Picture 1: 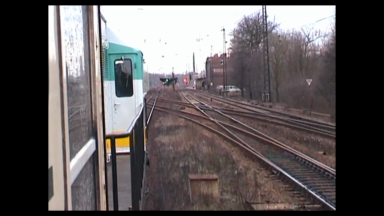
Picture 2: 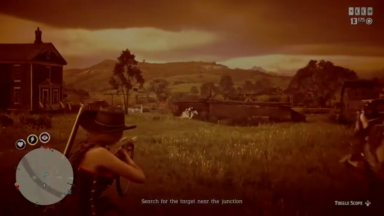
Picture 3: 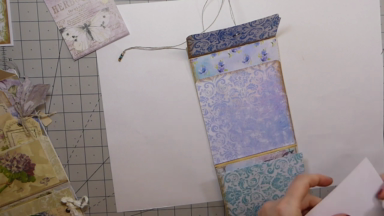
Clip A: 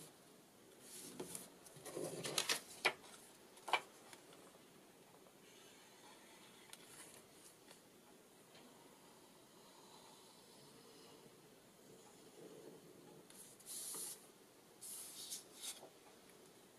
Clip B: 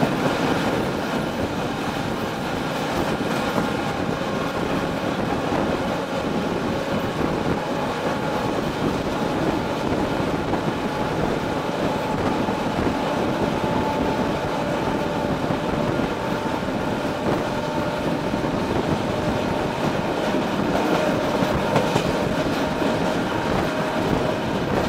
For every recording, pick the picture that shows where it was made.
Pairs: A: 3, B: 1